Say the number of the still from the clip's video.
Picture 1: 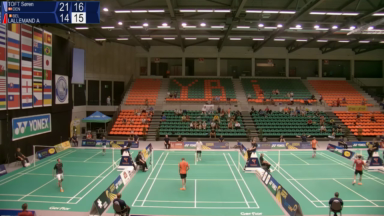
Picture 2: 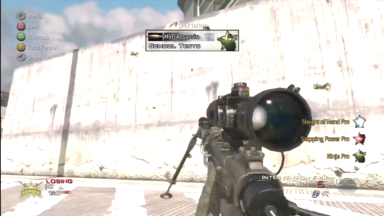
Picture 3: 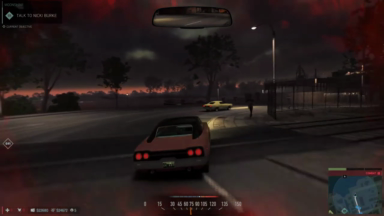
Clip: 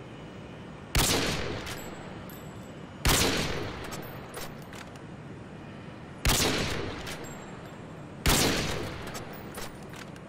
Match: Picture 2